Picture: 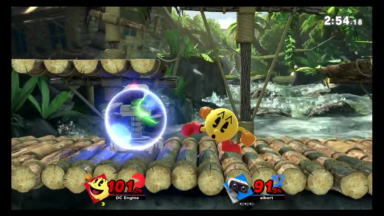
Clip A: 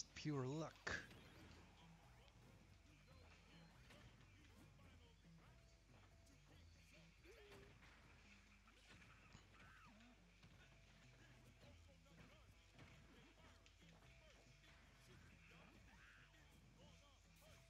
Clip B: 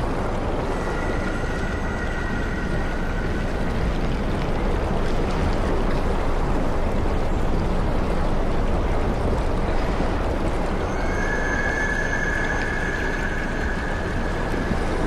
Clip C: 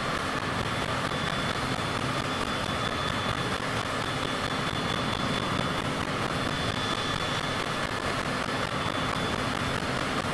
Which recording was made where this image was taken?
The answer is A